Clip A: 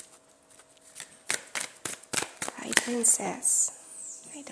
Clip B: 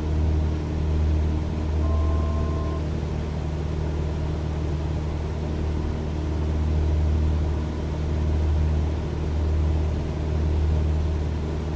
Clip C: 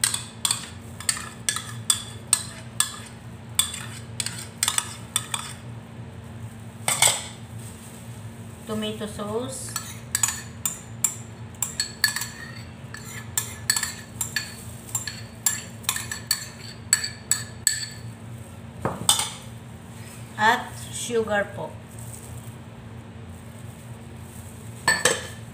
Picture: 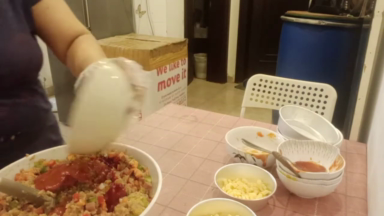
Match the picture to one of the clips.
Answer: C